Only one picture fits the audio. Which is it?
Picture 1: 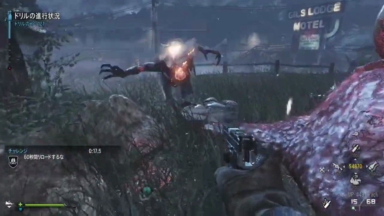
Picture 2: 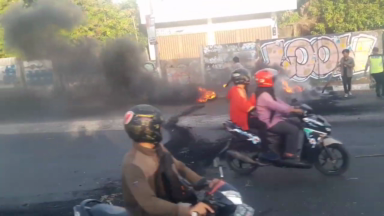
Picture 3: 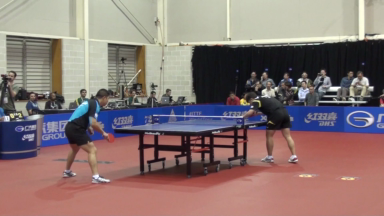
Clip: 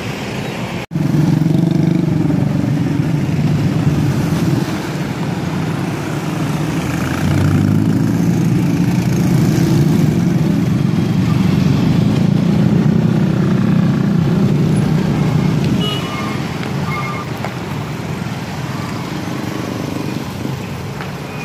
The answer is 2